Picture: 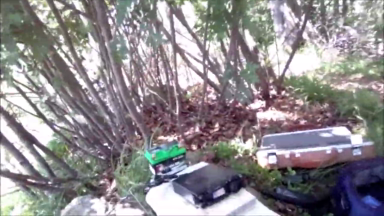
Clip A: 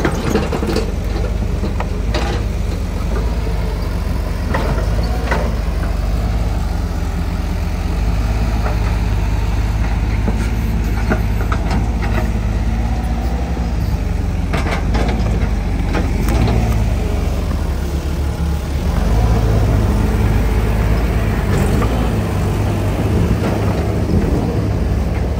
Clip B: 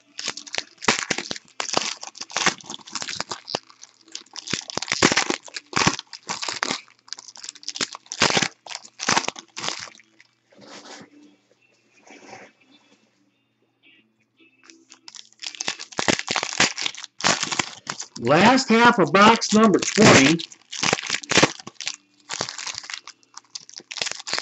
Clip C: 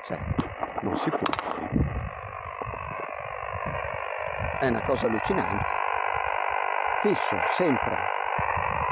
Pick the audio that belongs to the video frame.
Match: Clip C